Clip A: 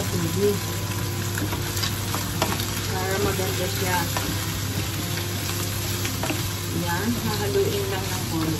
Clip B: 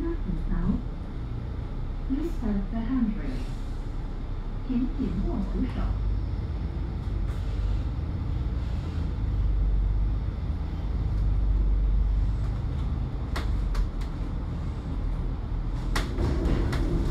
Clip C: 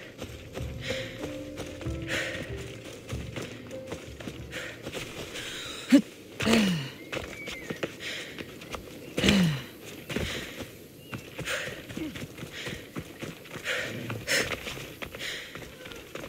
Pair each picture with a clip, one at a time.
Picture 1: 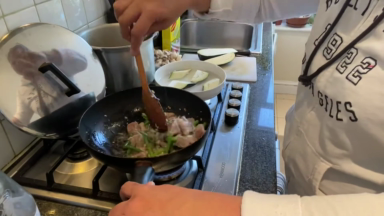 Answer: A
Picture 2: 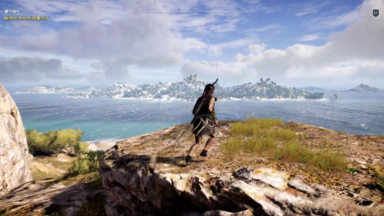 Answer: C